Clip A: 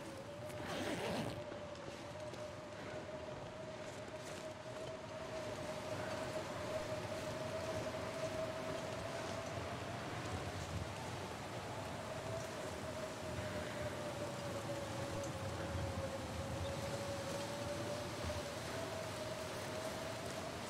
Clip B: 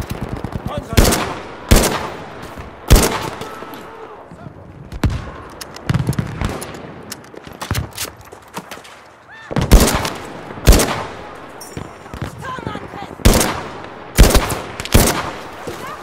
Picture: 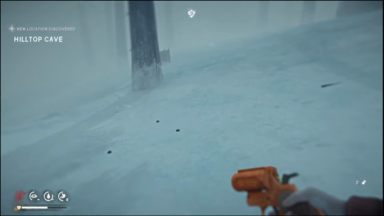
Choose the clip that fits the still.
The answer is A